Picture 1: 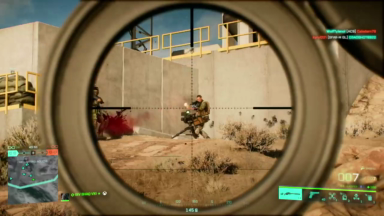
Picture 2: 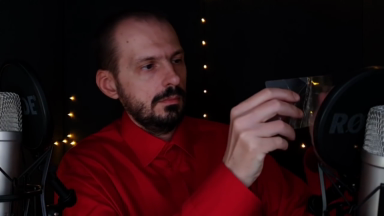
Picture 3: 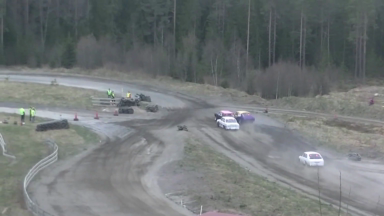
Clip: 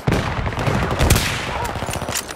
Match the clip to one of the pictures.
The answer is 1